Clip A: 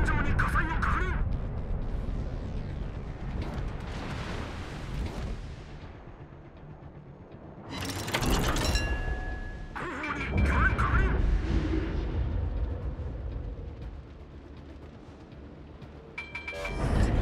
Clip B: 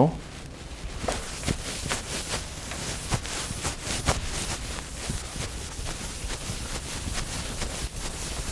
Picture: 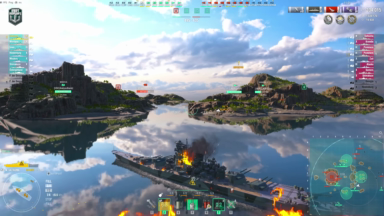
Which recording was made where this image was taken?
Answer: A